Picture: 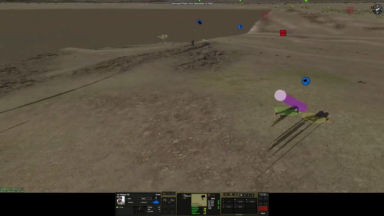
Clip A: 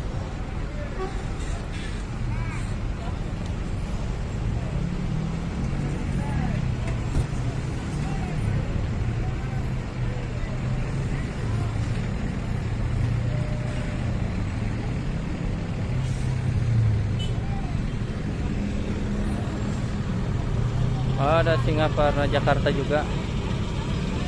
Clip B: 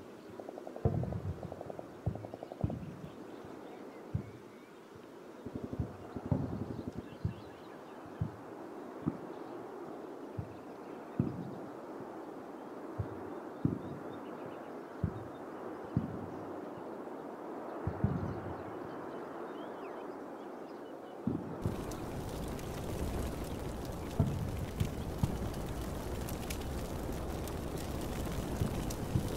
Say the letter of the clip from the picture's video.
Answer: B